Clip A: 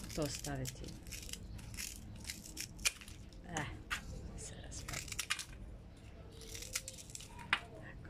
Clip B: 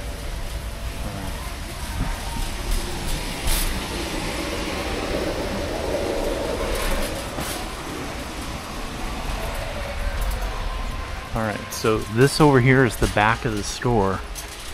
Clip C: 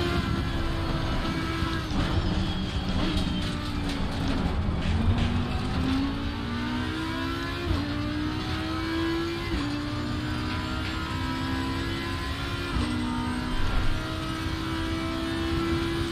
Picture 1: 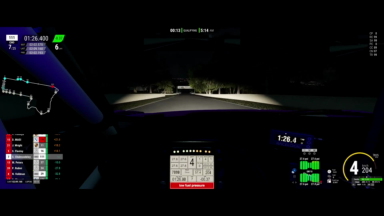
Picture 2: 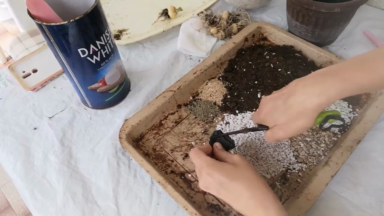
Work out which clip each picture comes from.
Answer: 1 C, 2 A